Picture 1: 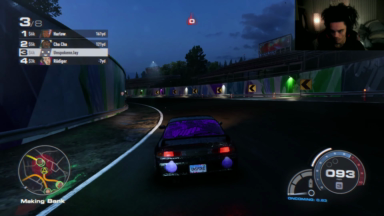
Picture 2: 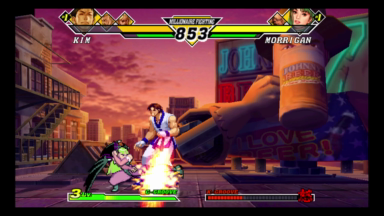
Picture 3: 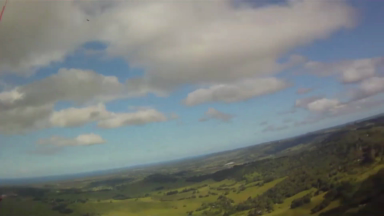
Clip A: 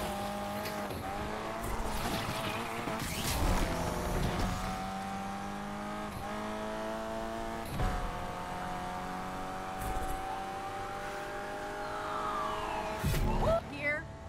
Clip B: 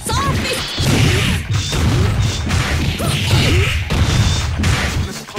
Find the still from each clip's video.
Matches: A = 1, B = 2